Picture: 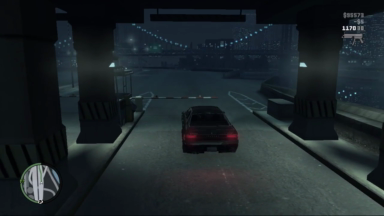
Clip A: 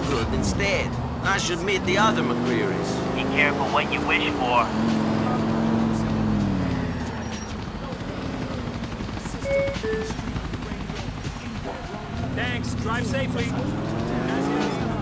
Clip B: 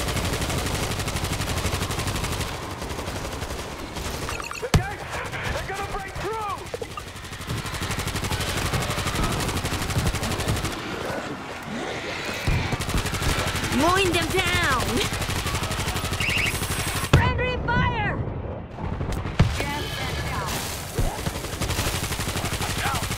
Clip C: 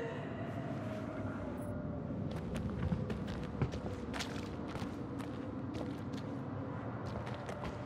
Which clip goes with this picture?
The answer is A